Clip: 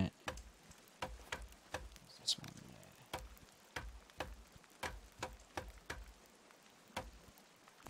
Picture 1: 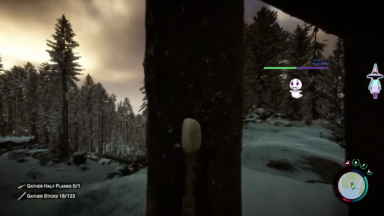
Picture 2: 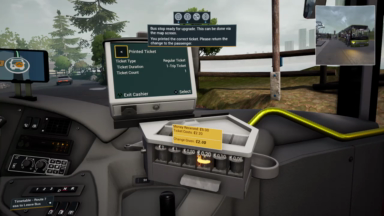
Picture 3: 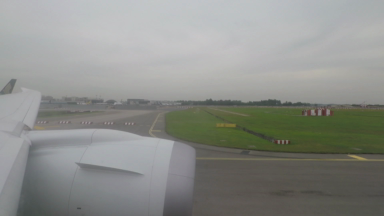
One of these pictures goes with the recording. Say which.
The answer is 1